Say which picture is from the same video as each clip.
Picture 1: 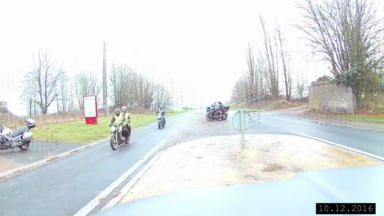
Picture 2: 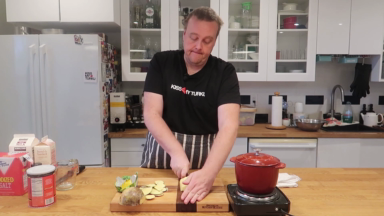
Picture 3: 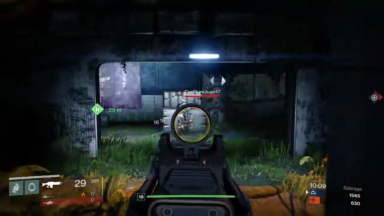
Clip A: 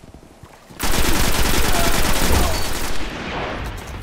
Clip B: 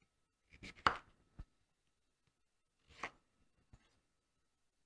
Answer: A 3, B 2